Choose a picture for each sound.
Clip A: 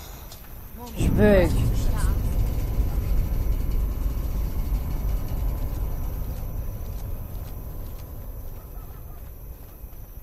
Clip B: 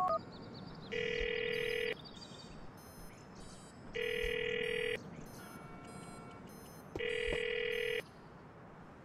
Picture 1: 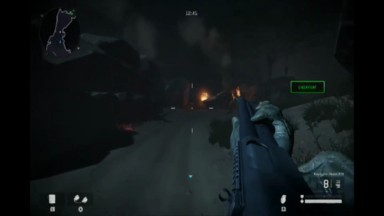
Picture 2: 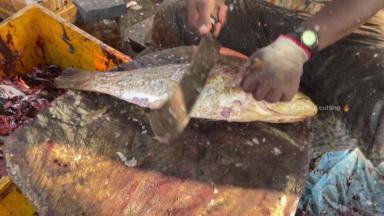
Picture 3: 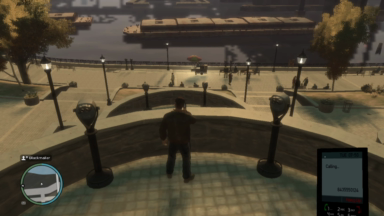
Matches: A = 1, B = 3